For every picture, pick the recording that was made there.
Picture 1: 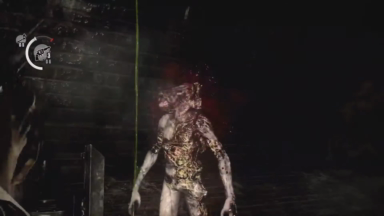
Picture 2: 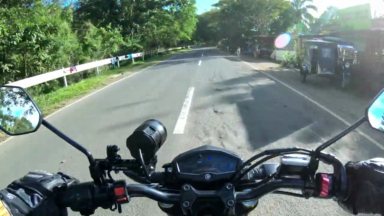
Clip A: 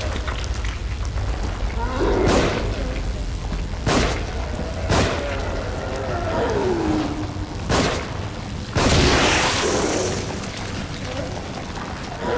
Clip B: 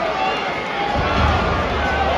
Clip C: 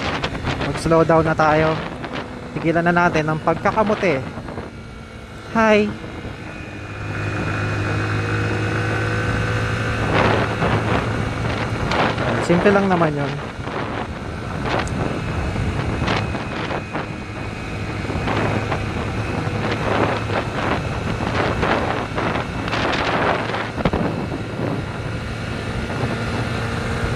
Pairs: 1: A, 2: C